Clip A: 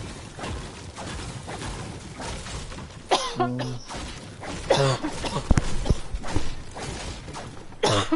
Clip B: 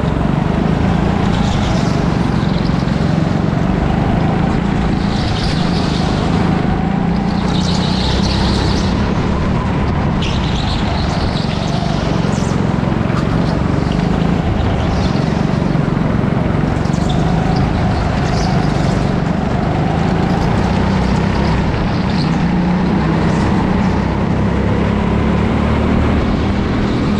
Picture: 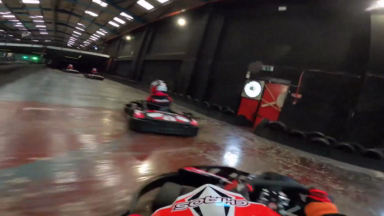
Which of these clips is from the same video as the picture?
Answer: B